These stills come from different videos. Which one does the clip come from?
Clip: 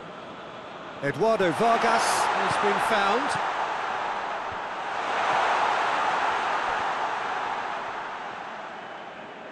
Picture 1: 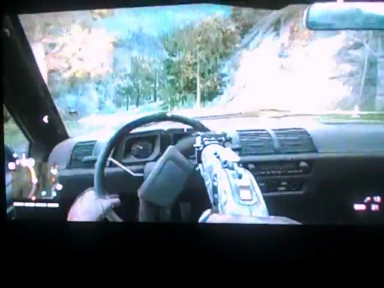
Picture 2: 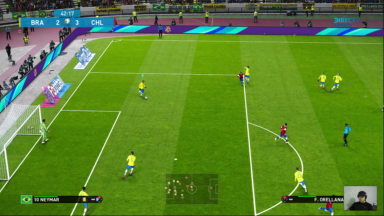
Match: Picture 2